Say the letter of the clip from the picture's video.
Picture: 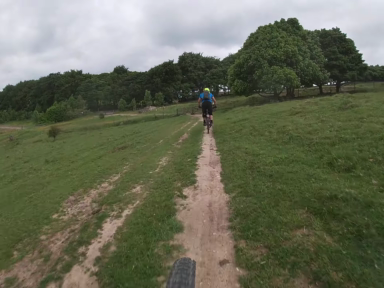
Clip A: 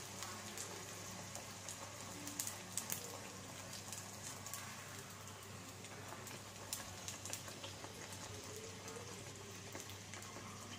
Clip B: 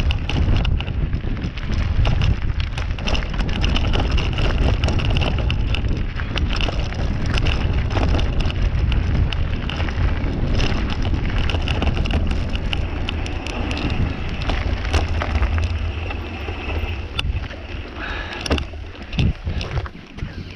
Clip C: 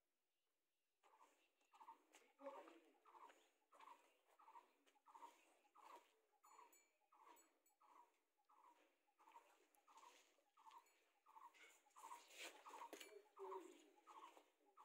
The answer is B